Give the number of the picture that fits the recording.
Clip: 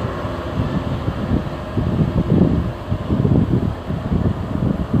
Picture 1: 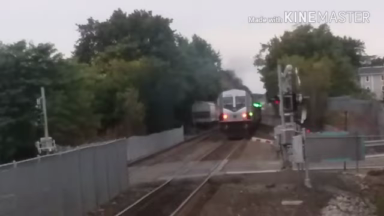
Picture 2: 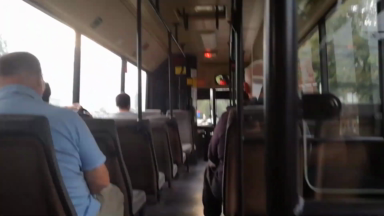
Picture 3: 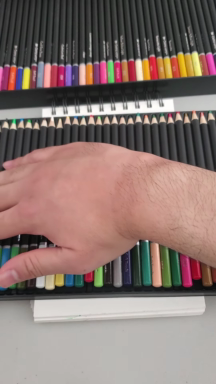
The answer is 1